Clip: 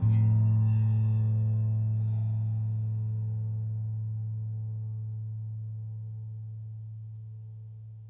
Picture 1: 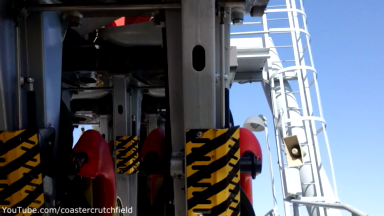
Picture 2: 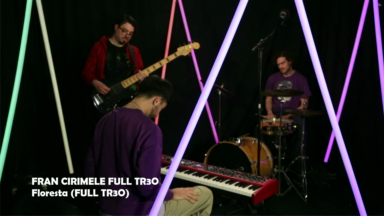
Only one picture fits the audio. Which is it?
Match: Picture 2